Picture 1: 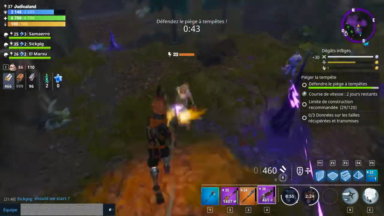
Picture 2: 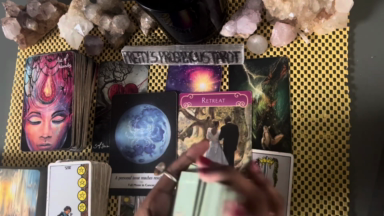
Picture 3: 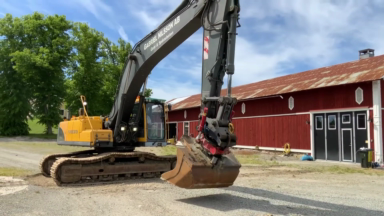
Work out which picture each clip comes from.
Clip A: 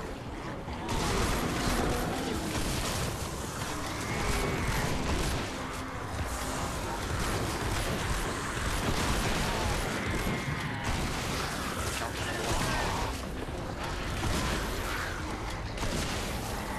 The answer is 1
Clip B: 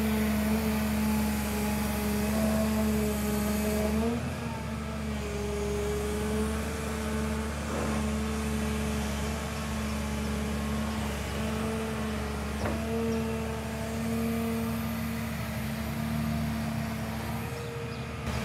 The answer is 3